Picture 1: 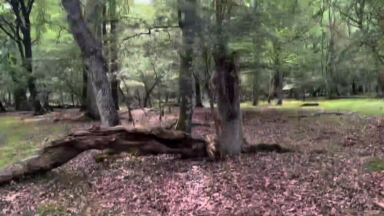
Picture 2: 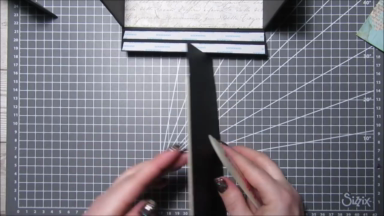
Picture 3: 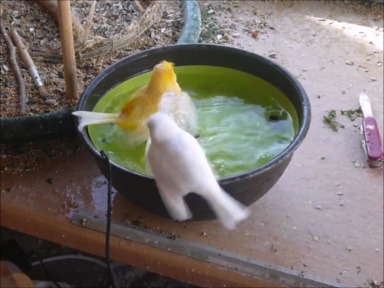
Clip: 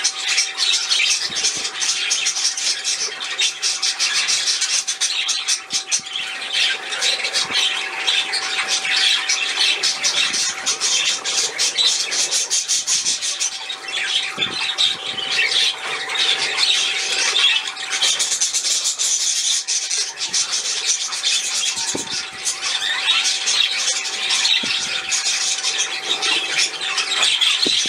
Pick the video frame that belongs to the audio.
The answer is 3